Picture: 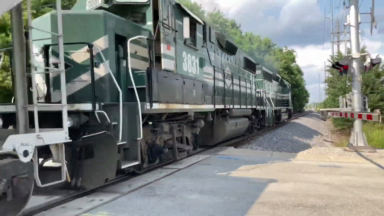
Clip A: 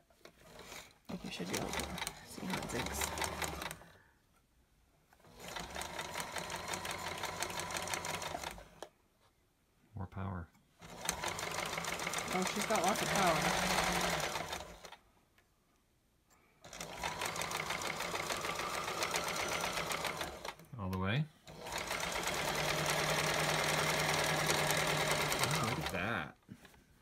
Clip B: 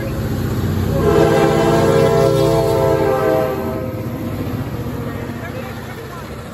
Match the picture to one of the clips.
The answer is B